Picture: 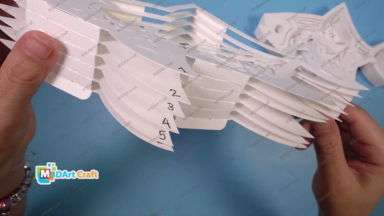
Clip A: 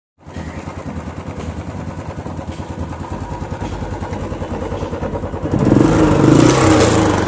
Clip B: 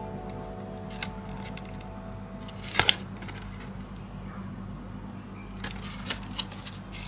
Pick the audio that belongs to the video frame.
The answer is B